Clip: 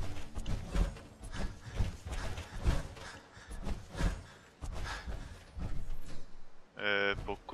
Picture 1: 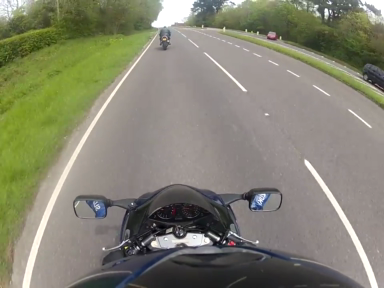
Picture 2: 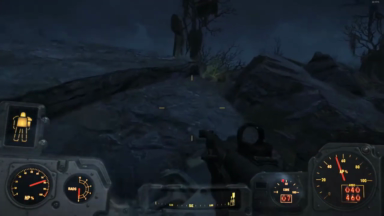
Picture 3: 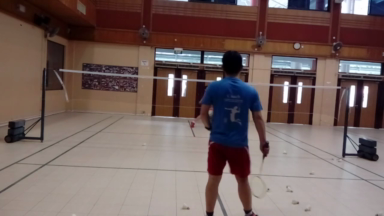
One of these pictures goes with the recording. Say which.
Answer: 2